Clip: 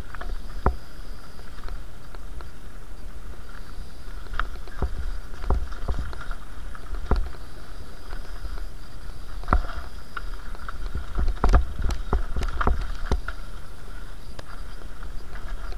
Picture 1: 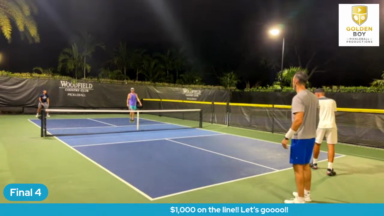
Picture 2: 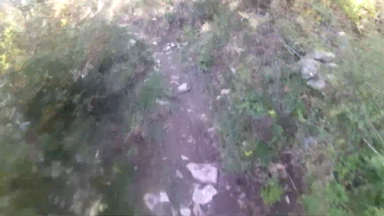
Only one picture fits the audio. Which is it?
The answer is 2